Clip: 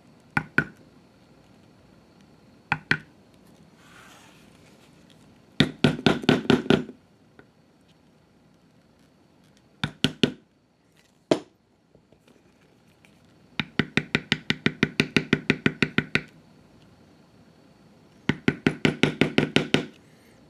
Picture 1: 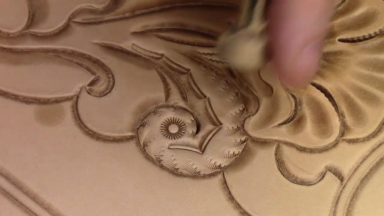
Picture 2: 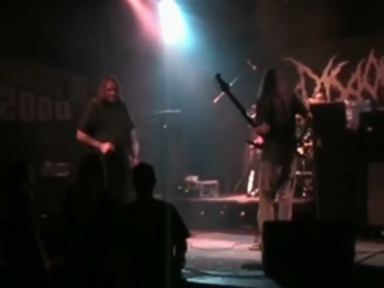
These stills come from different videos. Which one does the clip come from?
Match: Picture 1